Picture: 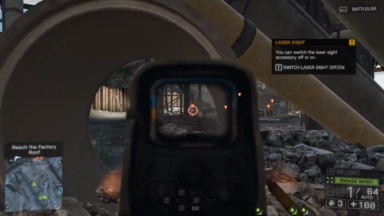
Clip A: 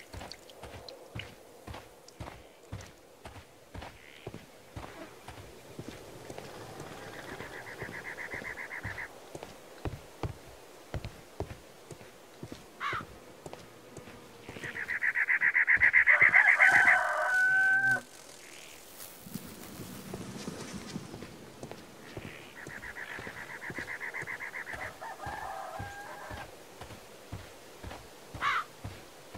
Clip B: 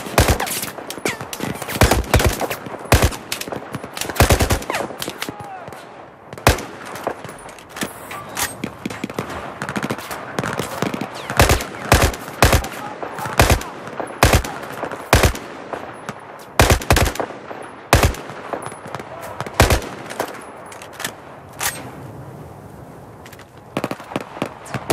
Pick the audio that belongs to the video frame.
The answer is B